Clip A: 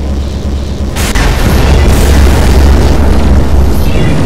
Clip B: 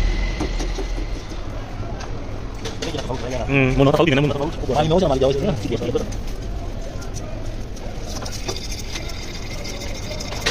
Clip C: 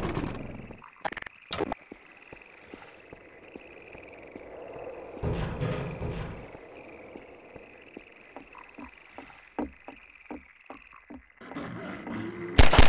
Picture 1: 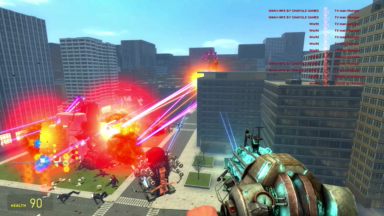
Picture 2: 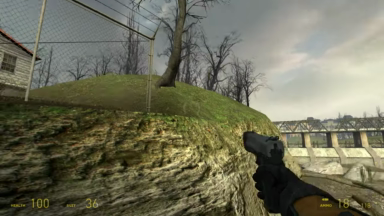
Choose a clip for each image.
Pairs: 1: A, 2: C